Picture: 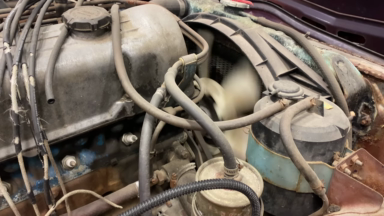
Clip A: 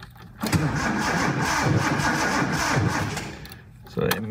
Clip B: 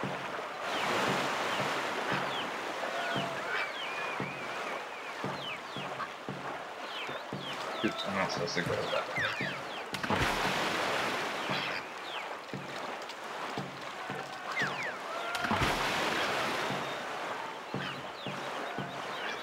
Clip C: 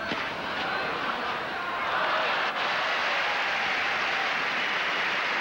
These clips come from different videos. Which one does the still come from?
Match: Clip A